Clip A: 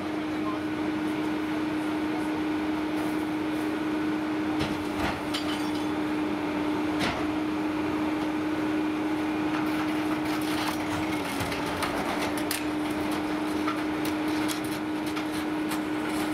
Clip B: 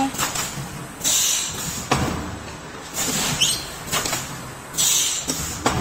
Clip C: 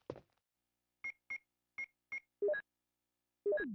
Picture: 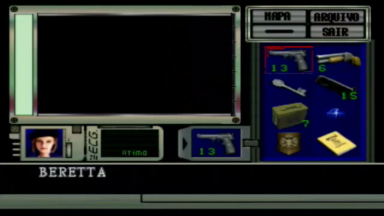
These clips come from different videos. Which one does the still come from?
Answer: C